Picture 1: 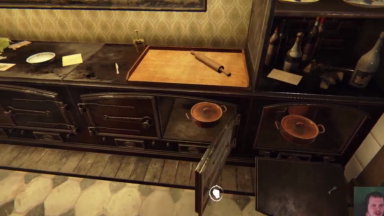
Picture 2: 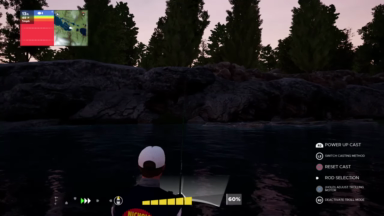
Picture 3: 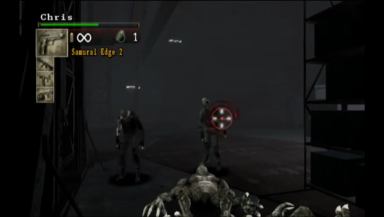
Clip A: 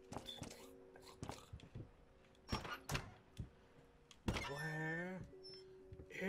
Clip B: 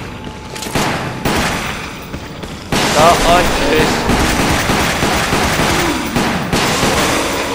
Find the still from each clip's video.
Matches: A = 1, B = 3